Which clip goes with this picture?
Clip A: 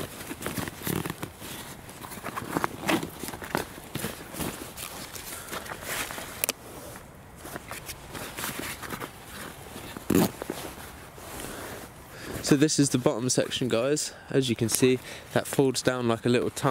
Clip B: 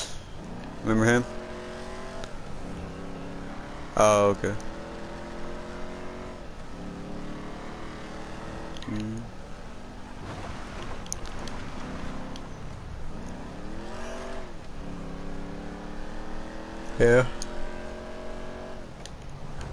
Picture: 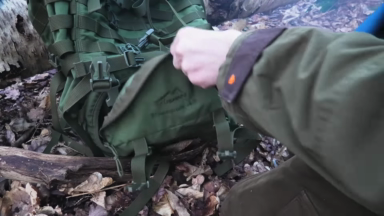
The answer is A